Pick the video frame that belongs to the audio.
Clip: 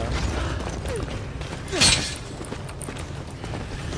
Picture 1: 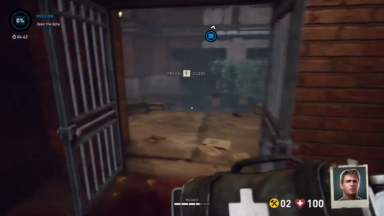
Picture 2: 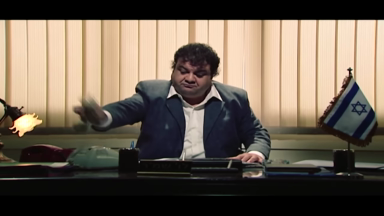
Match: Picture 1